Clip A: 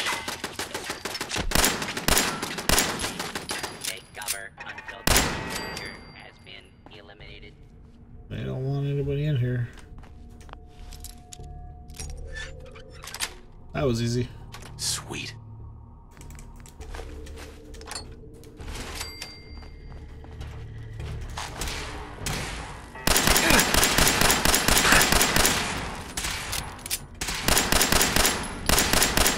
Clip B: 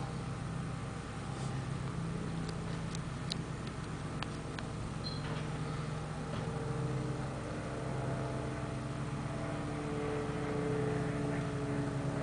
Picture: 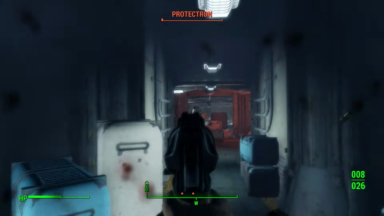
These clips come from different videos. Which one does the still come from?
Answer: A